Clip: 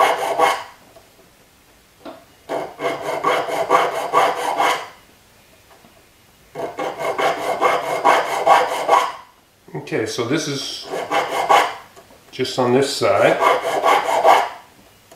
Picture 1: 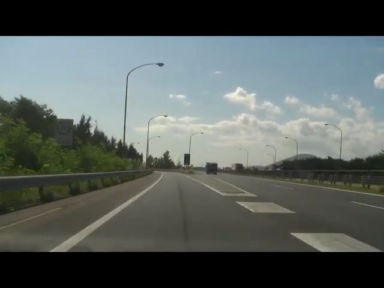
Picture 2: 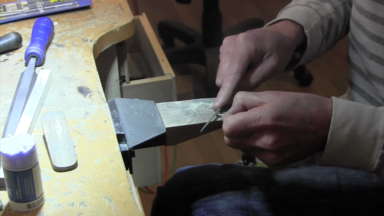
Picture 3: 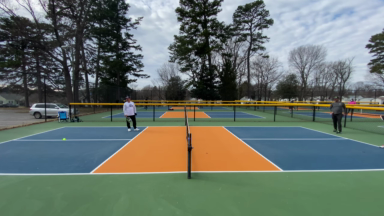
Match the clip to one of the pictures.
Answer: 2